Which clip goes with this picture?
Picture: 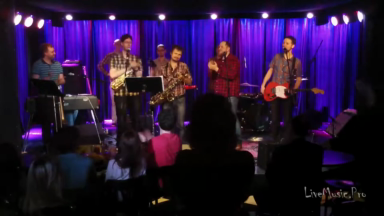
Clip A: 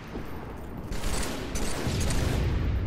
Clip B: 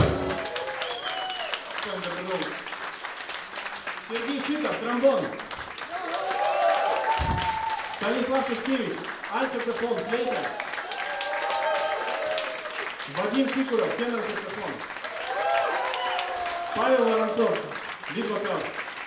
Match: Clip B